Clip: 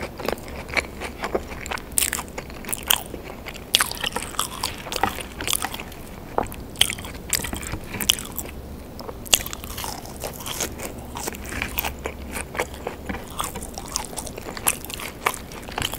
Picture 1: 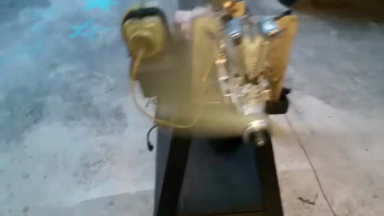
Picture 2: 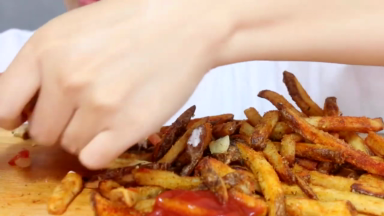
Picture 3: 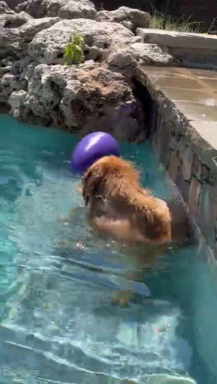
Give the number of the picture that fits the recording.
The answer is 2